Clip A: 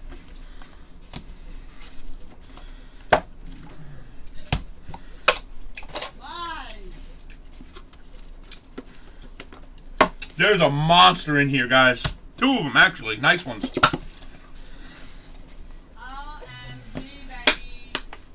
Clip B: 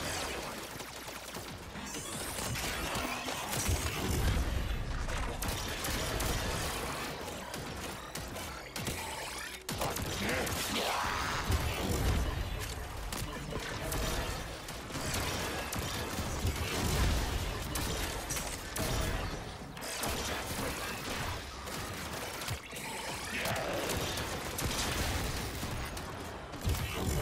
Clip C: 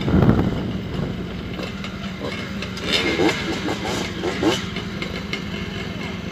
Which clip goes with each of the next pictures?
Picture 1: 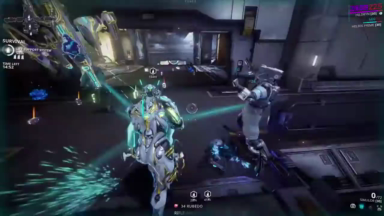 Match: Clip B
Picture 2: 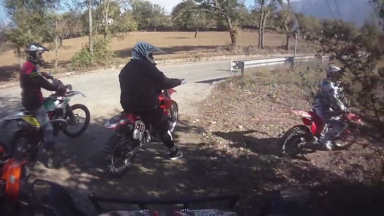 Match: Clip C